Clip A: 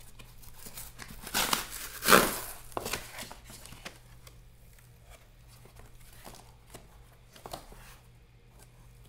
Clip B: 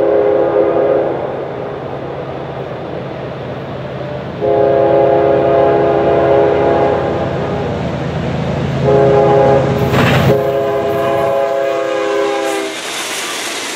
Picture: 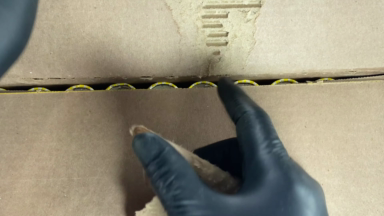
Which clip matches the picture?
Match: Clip A